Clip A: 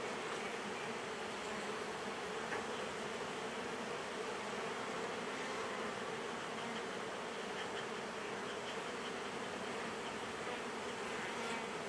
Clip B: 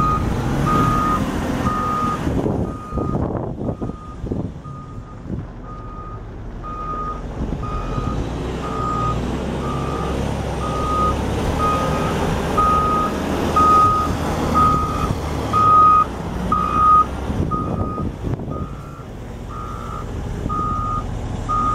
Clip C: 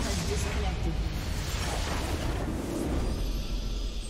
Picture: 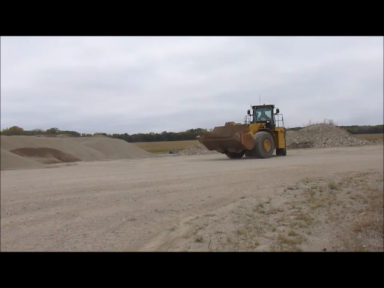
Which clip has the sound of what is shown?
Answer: B